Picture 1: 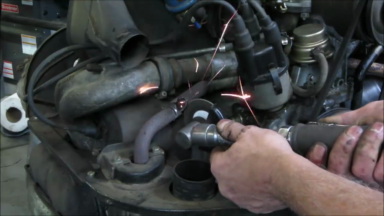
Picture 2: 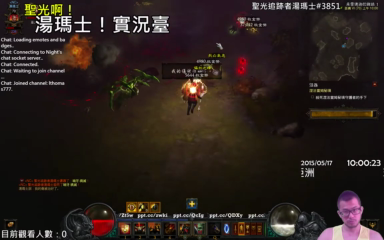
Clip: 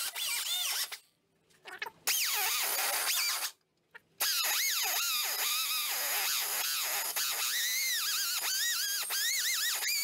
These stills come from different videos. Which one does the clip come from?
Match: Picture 1